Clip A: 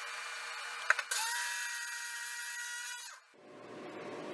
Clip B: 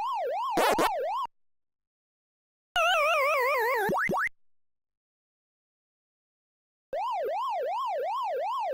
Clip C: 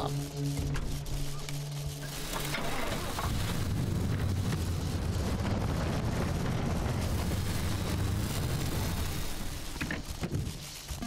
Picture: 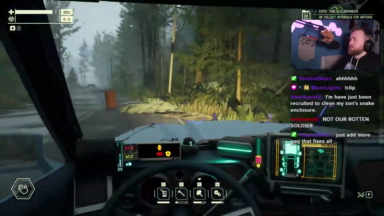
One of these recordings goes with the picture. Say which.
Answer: C